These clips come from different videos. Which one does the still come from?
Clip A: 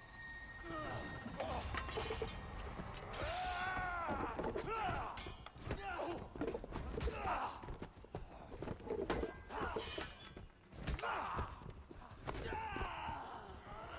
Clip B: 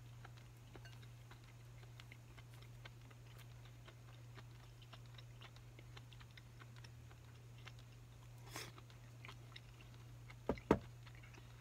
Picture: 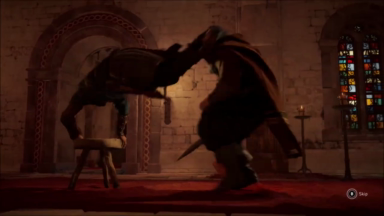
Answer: A